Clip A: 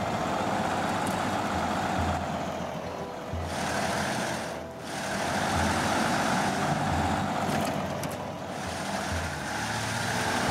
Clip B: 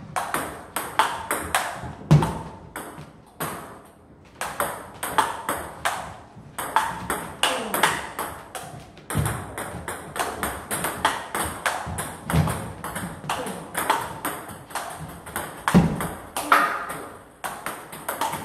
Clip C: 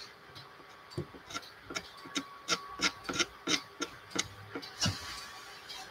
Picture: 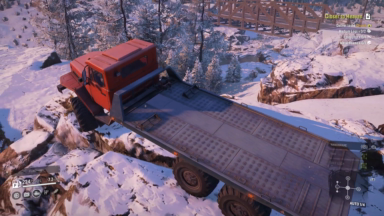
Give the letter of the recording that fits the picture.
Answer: A